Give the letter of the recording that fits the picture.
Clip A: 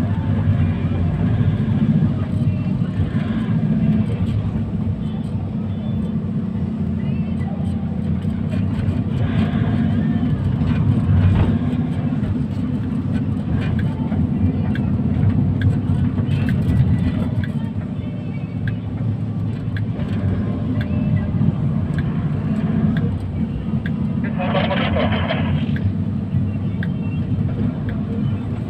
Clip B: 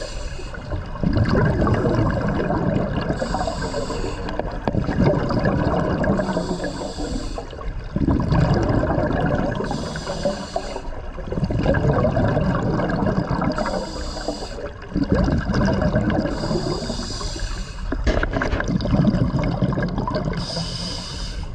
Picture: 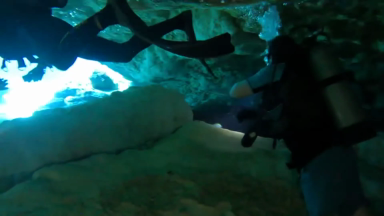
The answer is B